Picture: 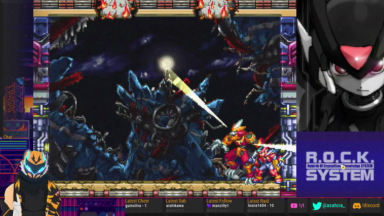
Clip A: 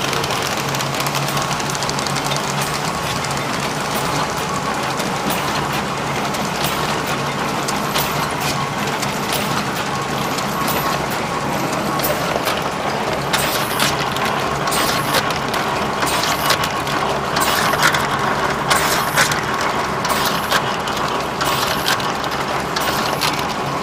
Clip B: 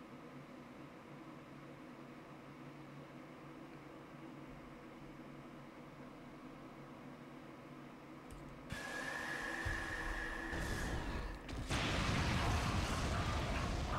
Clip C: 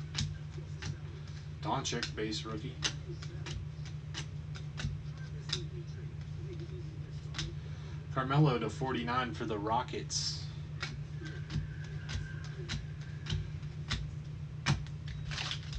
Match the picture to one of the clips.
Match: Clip B